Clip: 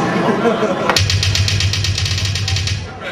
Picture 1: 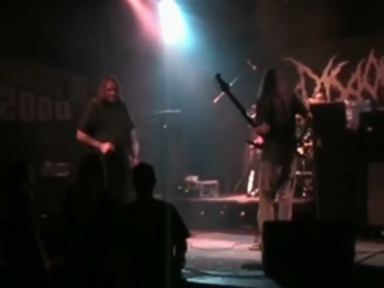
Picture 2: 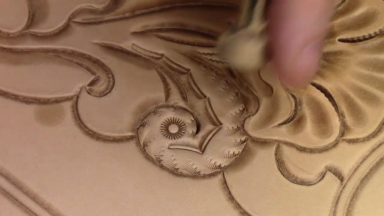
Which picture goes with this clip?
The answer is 1